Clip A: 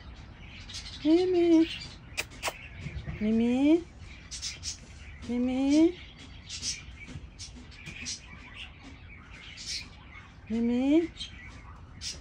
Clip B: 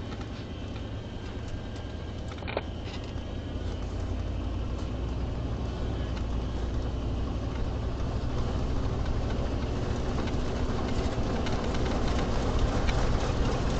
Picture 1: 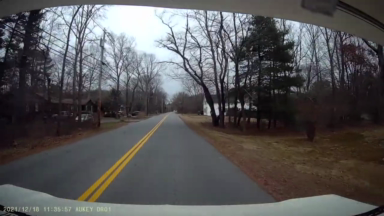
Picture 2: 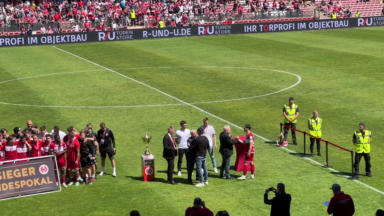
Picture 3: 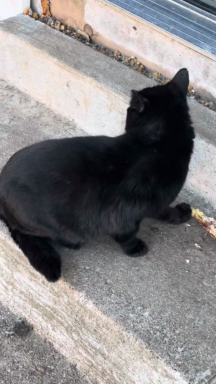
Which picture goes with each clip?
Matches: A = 3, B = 1